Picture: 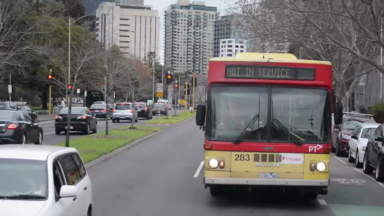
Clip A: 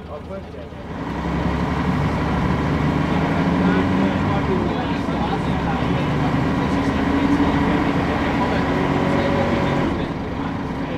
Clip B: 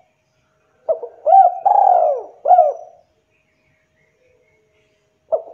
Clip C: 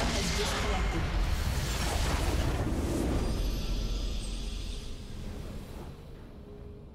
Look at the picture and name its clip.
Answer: A